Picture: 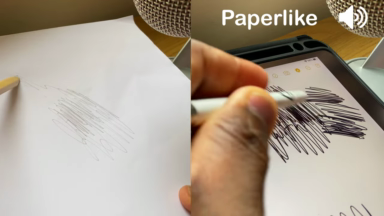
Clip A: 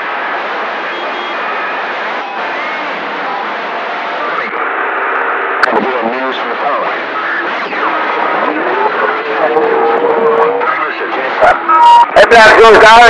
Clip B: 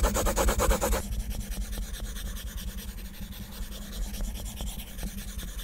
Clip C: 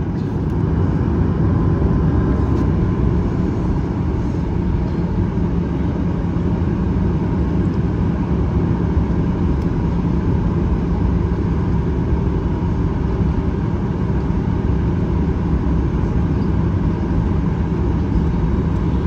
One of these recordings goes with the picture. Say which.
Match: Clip B